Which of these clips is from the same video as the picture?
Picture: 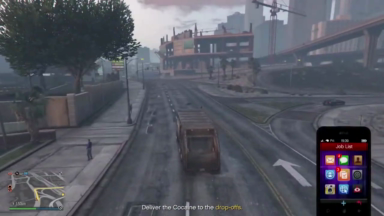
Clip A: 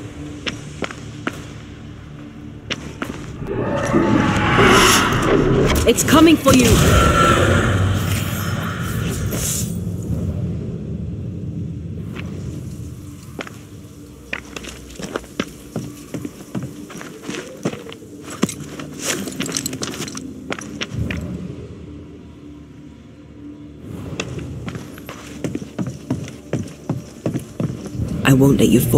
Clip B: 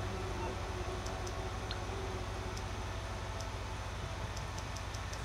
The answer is B